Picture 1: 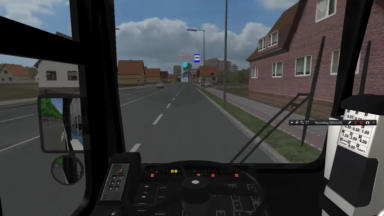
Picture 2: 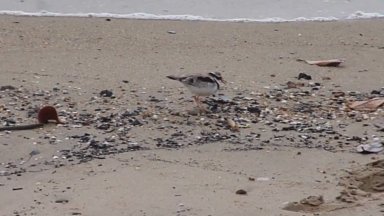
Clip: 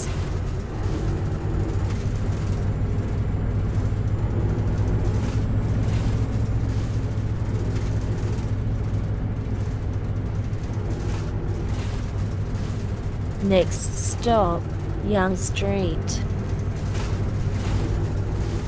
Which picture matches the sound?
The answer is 1